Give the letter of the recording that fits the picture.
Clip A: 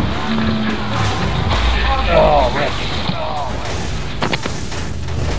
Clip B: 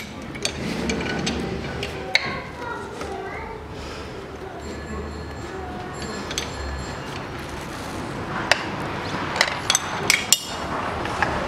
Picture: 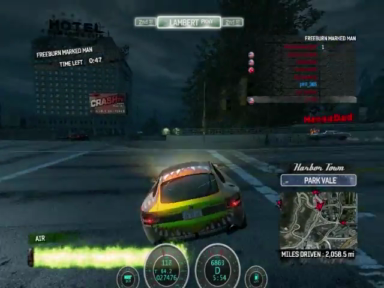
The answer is A